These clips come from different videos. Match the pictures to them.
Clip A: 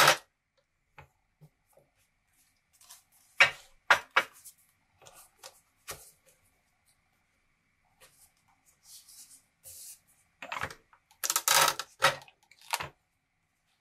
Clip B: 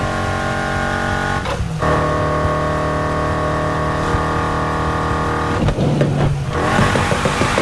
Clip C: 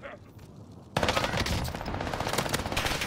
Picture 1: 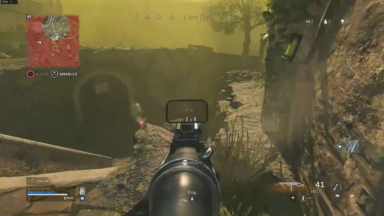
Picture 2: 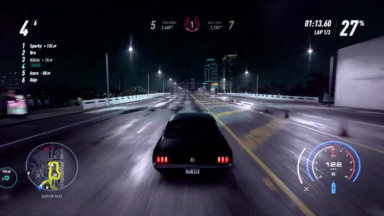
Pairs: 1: C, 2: B